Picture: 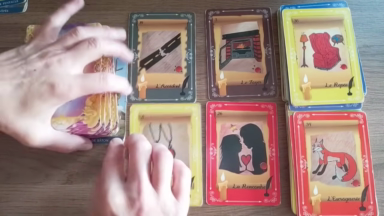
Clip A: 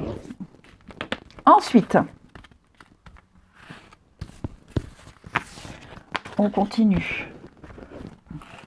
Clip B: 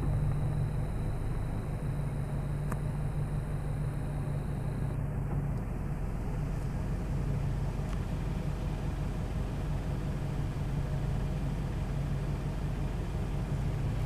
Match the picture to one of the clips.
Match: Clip A